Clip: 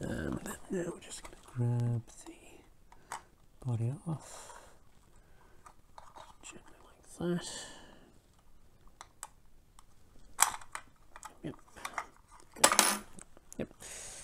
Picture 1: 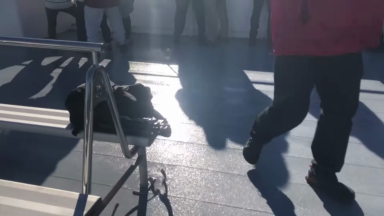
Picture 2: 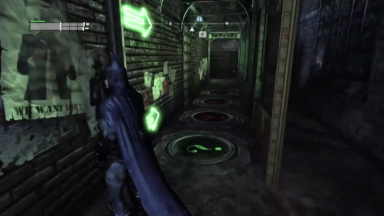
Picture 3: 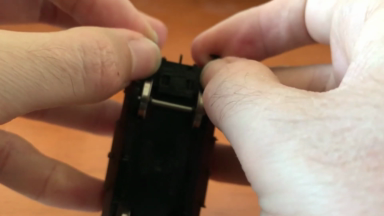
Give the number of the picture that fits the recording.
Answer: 3